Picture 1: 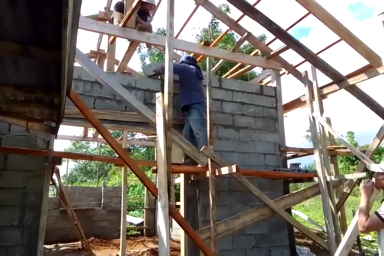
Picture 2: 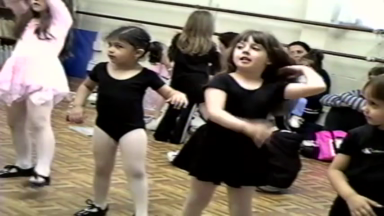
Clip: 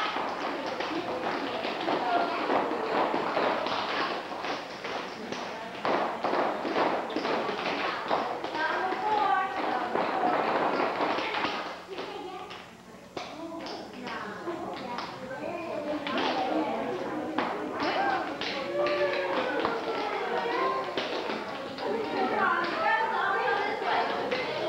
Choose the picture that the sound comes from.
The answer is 2